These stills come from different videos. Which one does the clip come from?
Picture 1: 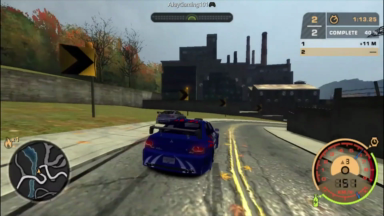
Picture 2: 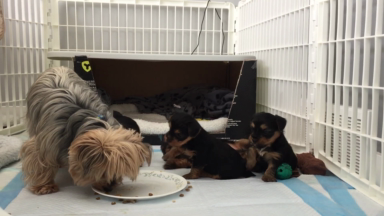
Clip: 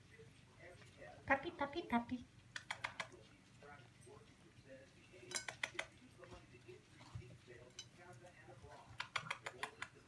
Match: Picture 2